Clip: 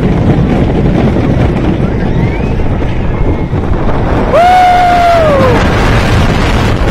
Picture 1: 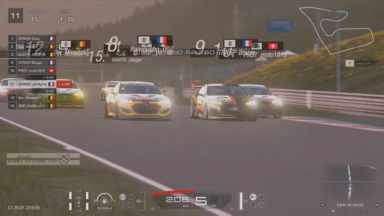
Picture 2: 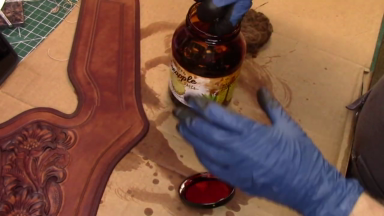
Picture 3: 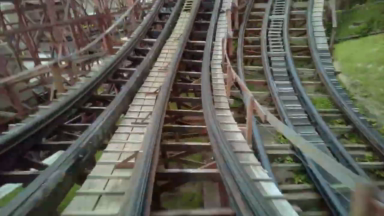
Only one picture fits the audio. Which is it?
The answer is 3